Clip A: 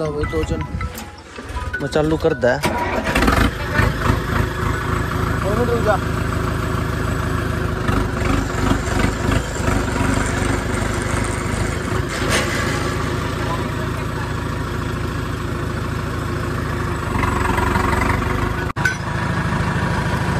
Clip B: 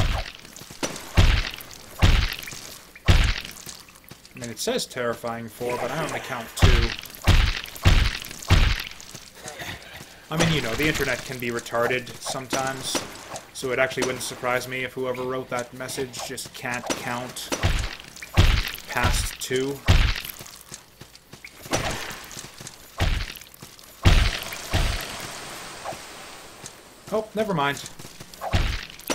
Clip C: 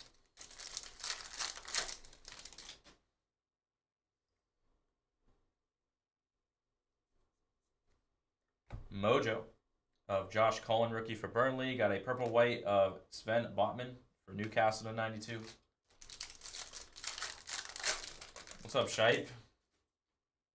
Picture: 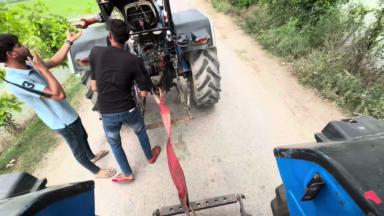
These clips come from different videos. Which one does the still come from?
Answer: A